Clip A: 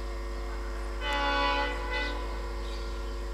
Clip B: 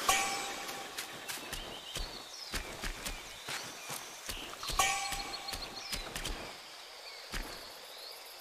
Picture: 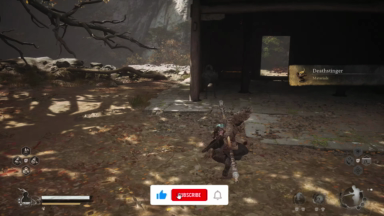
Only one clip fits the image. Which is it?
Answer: B